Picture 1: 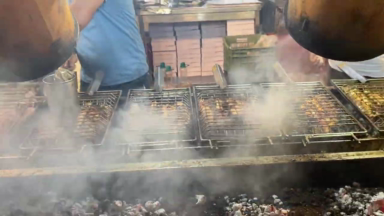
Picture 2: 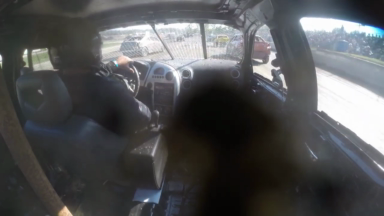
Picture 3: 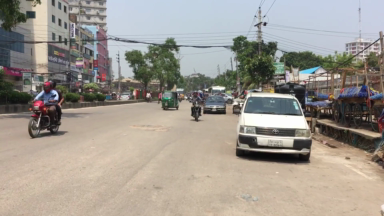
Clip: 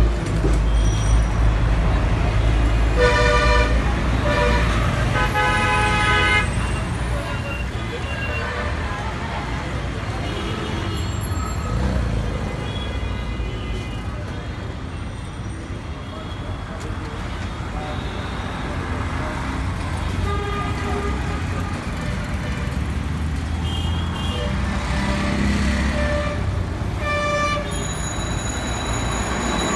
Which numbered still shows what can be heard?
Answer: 3